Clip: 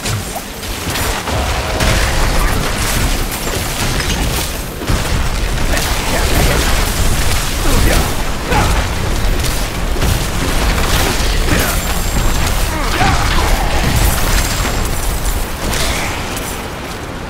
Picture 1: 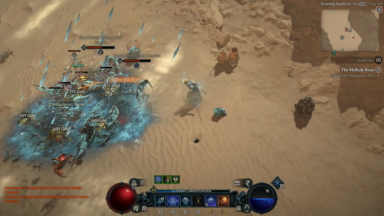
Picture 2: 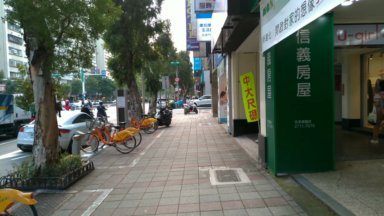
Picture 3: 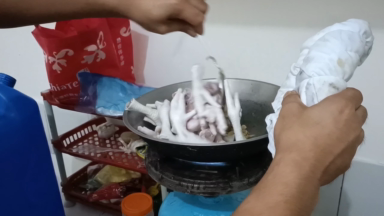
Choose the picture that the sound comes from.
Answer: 1